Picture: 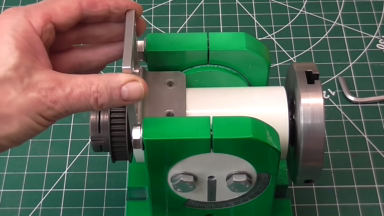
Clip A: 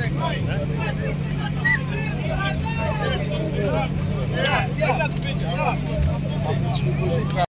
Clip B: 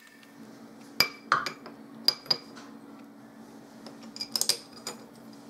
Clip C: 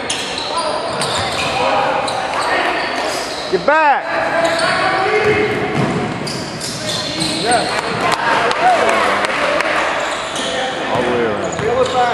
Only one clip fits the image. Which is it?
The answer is B